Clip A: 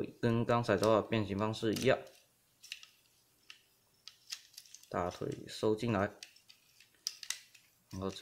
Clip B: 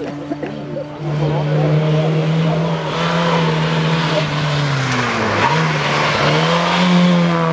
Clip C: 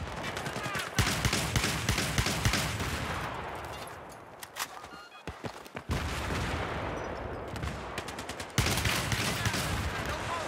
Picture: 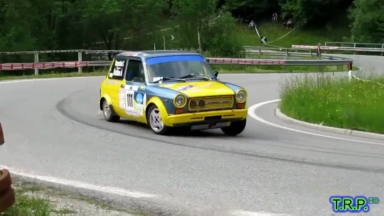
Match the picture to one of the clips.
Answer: B